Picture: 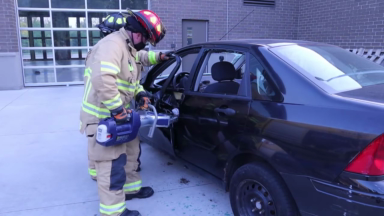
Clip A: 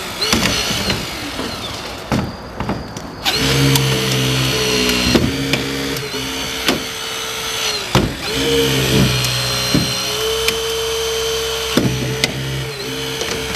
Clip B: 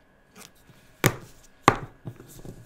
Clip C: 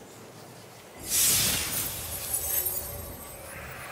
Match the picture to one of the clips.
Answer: A